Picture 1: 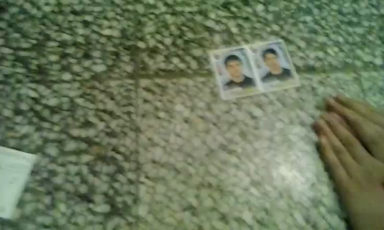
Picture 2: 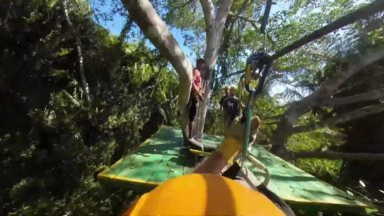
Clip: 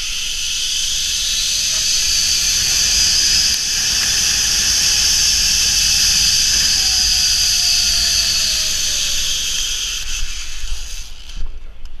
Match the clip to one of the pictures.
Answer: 2